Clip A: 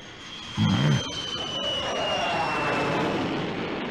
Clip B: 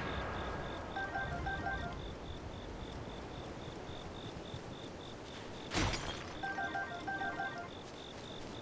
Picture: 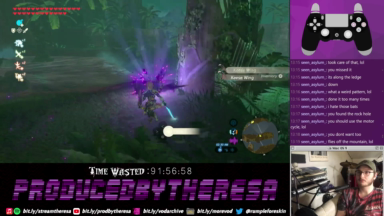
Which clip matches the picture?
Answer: B